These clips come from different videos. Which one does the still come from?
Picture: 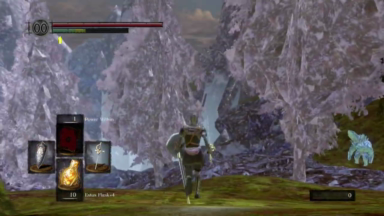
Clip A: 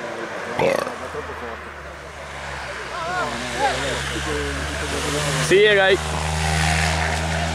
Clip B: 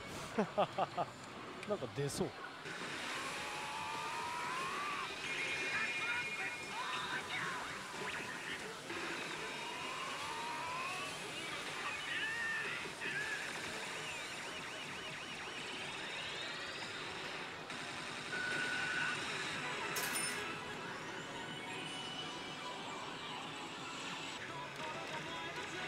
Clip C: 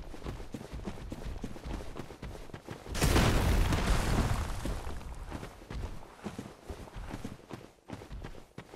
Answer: C